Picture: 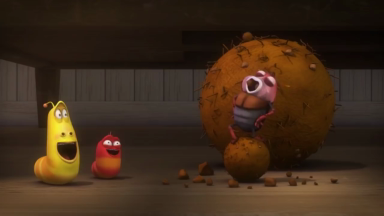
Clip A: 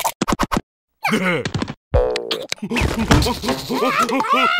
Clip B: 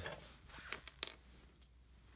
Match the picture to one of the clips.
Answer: A